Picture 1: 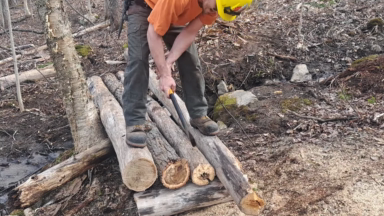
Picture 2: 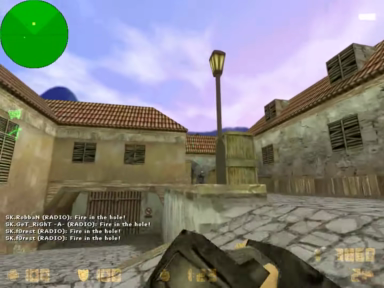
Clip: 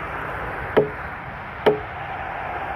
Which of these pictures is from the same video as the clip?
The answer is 1